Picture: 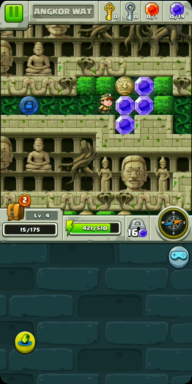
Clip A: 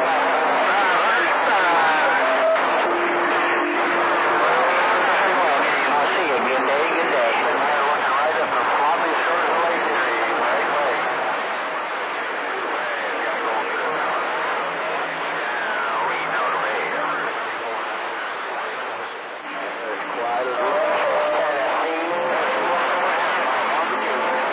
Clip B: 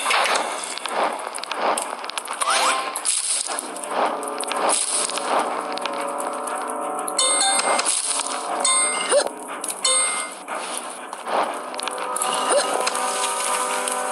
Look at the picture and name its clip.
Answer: B